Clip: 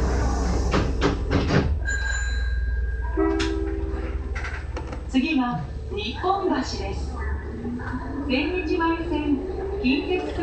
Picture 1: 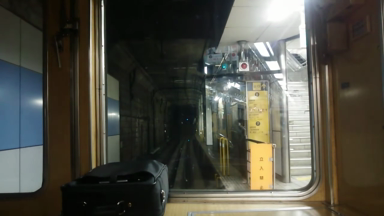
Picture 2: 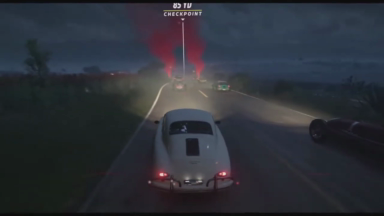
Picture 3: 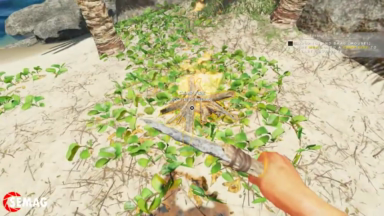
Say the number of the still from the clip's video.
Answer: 1